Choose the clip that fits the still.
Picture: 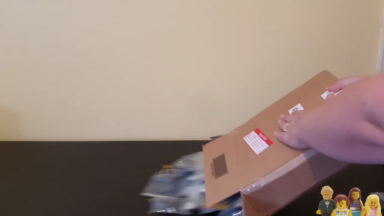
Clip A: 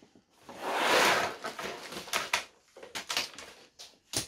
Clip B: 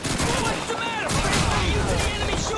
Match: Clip A